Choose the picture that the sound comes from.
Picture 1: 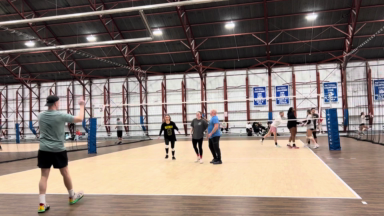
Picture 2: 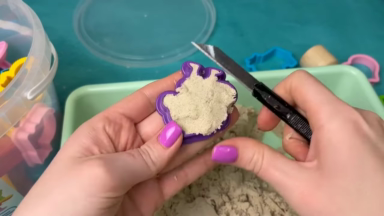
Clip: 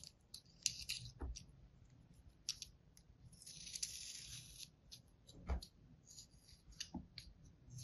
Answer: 2